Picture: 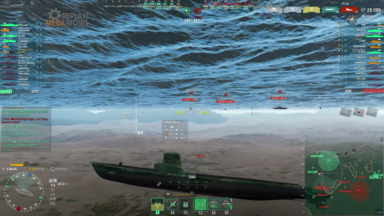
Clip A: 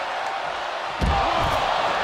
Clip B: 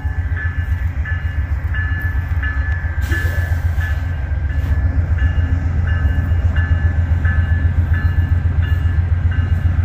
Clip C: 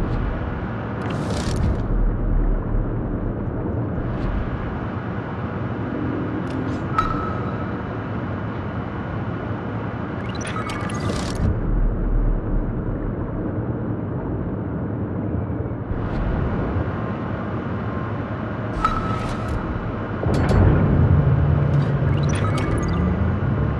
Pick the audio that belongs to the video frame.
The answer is C